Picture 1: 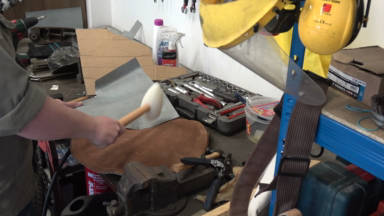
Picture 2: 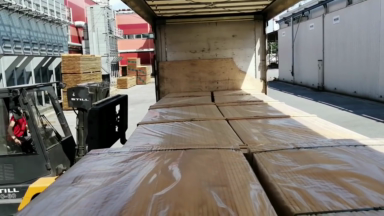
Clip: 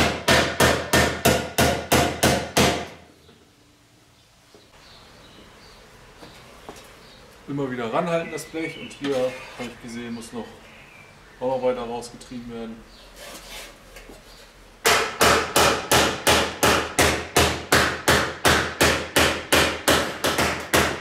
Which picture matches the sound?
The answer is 1